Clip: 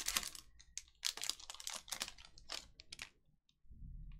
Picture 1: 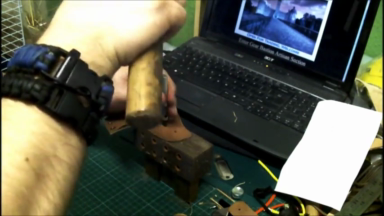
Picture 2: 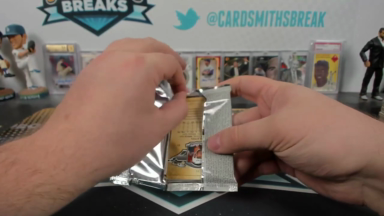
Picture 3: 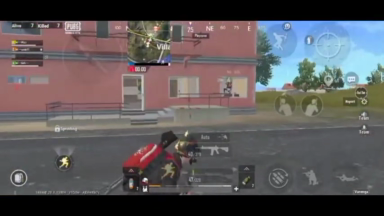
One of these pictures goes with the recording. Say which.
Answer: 2